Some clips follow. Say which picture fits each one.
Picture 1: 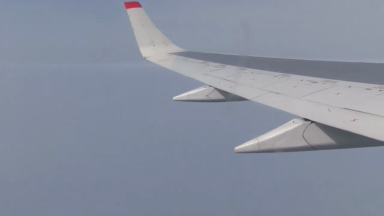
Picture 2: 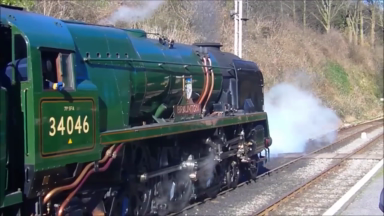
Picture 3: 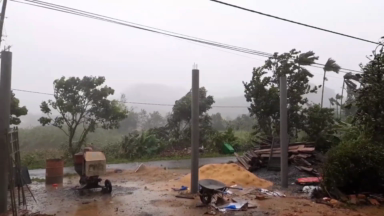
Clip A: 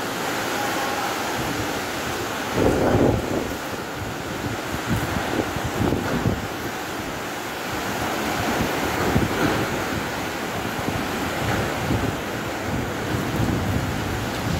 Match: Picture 3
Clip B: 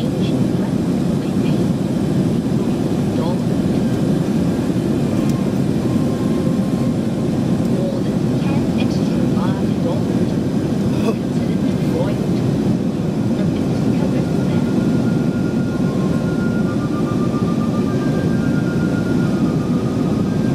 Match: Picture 1